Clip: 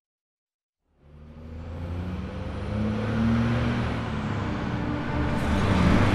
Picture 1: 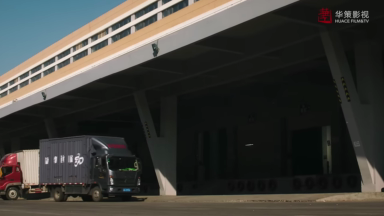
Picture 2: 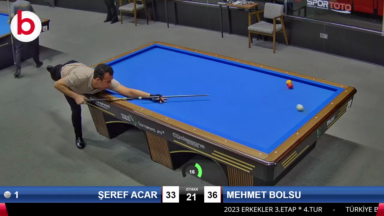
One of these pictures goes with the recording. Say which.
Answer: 1